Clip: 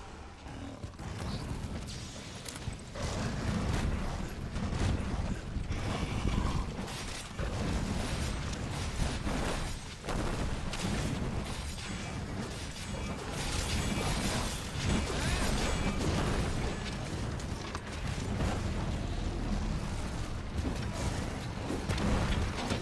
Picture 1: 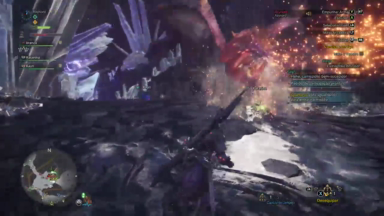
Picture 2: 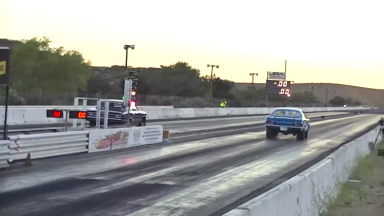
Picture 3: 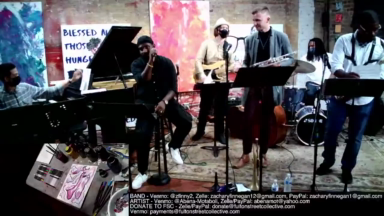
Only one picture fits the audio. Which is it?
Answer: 1